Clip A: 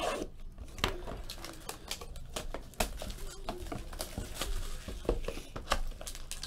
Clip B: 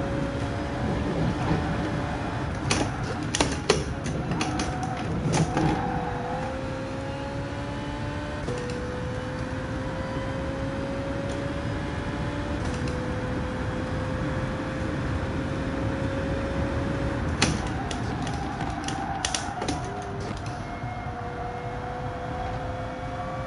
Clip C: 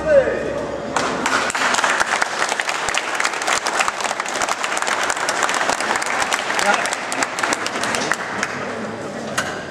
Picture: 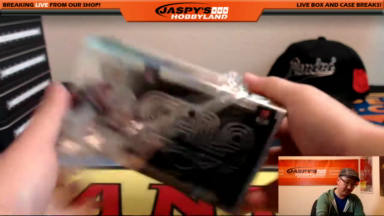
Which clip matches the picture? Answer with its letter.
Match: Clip A